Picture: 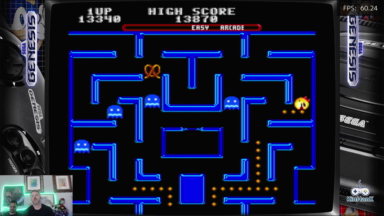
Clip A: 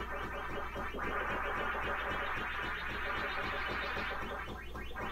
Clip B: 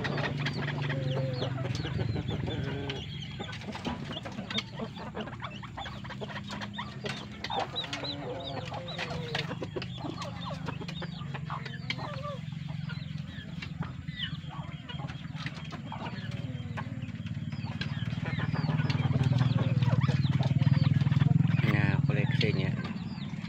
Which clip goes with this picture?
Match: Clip A